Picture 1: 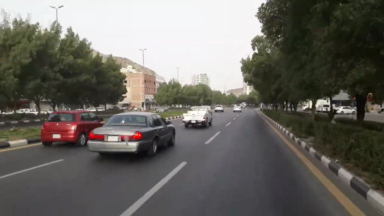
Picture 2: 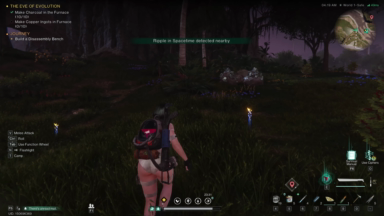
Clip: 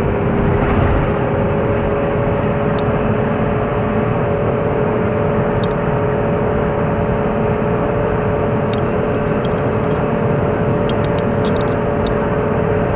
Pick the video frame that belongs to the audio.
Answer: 1